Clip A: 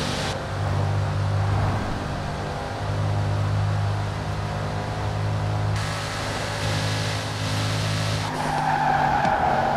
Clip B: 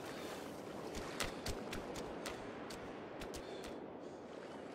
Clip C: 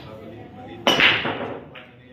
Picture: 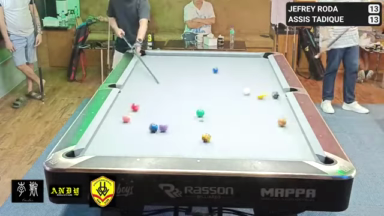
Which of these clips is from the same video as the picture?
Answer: C